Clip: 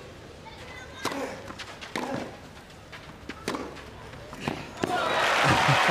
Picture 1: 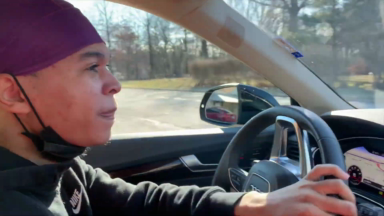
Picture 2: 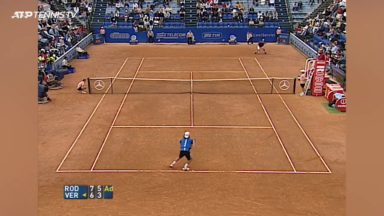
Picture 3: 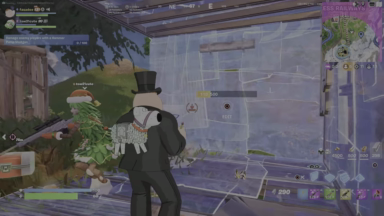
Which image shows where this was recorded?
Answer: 2